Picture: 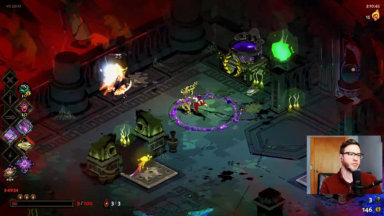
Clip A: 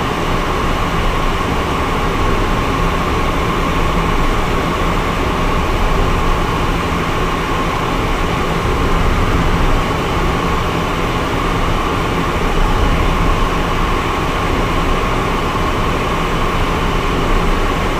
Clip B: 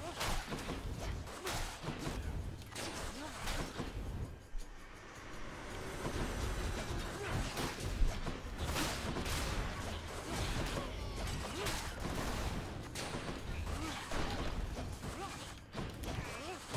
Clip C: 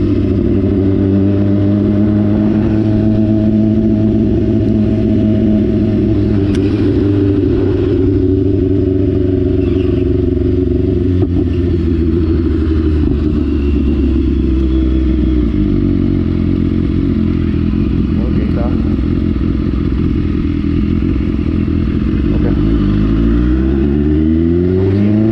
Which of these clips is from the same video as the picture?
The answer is B